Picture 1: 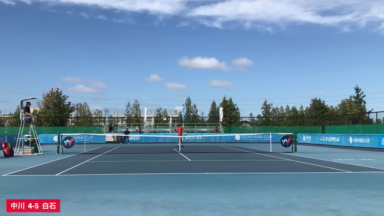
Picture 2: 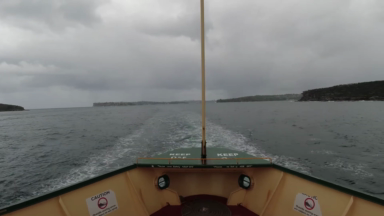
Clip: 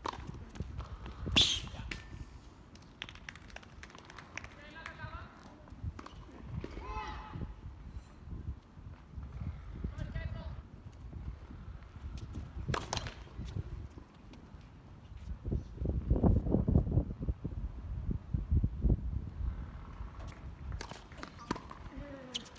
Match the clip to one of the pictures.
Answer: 1